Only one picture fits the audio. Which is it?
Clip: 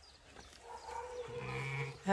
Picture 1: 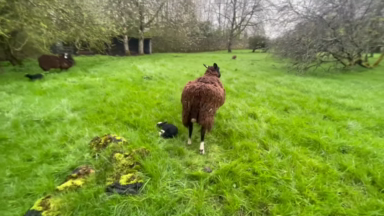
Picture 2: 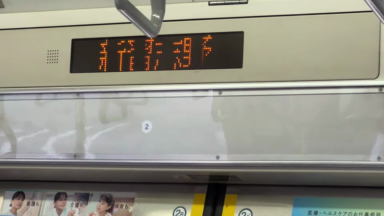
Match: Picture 1